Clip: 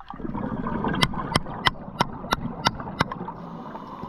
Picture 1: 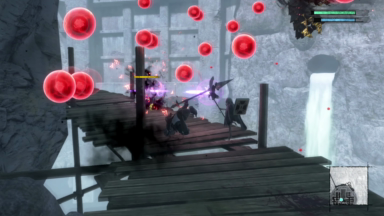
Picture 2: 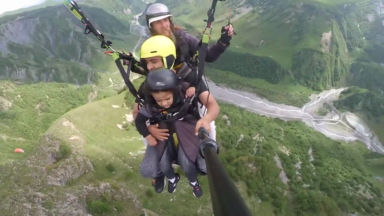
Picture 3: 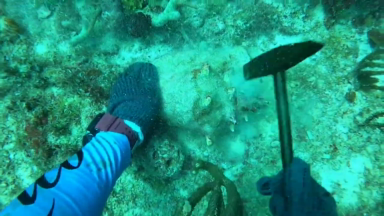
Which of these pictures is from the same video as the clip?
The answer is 3